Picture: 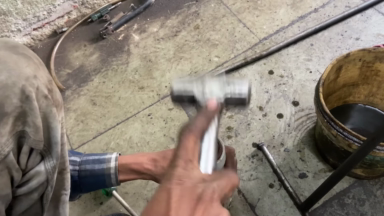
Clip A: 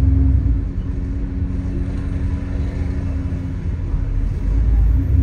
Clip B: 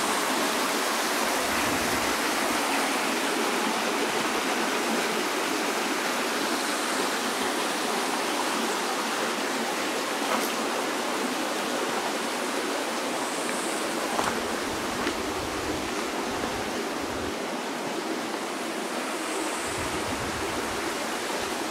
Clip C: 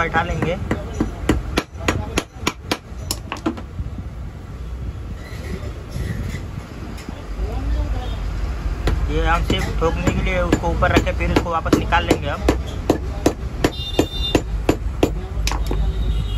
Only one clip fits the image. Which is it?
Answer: C